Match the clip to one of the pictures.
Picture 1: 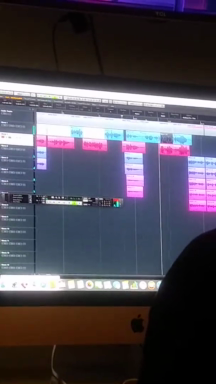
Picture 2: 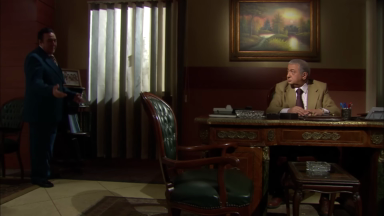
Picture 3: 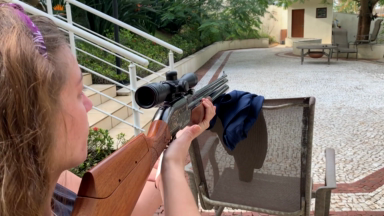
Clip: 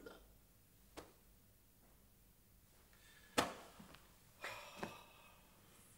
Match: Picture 2